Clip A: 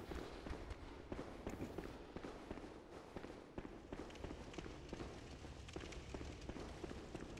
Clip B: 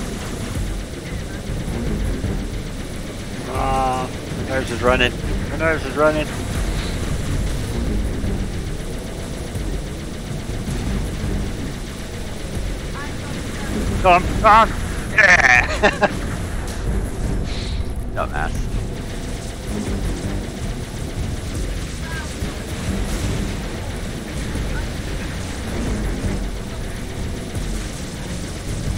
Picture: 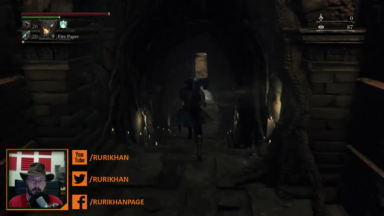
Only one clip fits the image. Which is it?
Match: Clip A